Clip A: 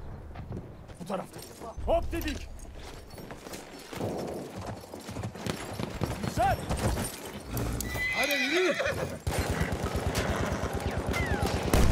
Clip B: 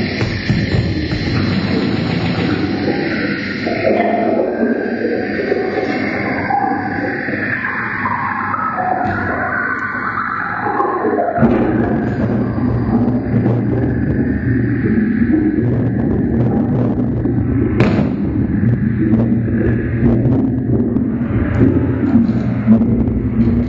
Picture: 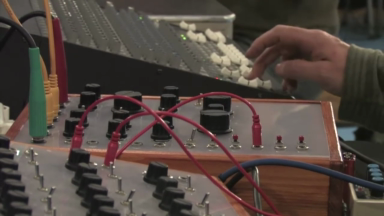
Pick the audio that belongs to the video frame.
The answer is B